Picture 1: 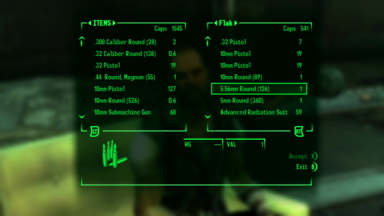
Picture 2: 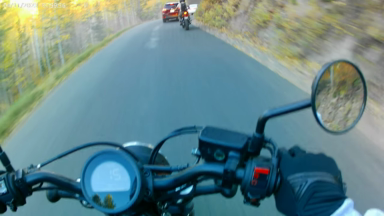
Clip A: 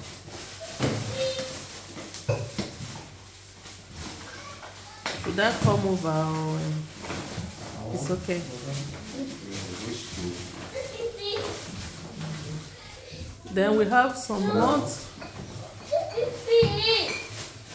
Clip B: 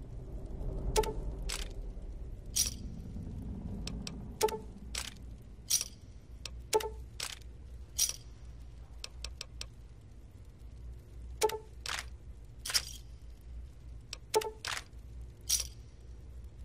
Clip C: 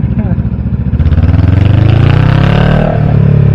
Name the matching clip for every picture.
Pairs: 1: B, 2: C